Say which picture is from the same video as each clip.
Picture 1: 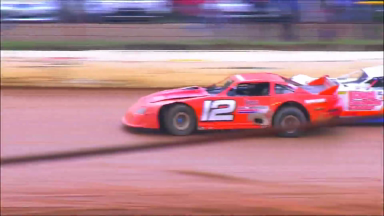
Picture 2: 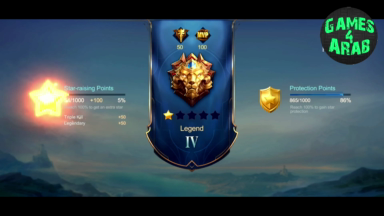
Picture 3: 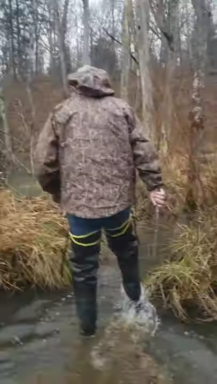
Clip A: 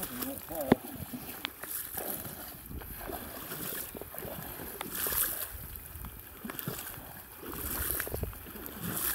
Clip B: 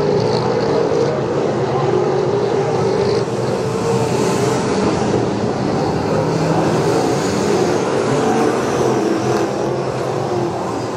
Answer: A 3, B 1